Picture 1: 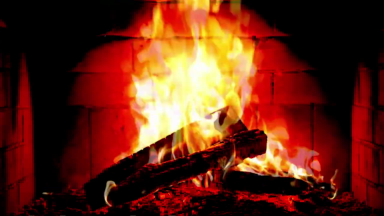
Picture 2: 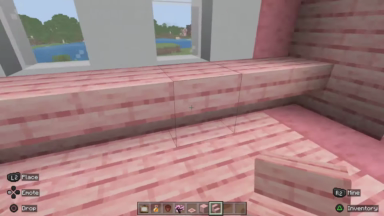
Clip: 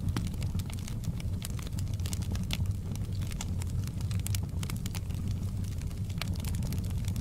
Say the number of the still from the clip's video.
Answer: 1